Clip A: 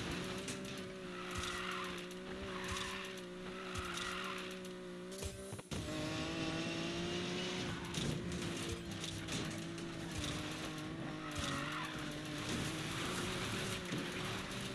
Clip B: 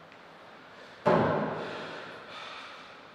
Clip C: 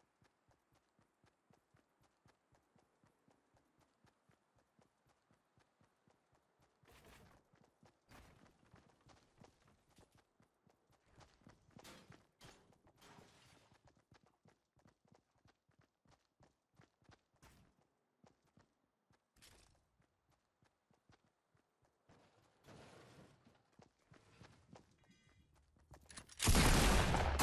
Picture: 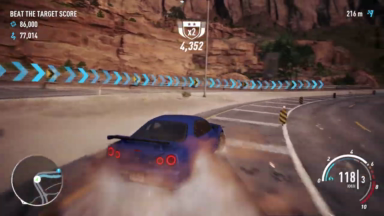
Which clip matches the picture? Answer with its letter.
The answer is A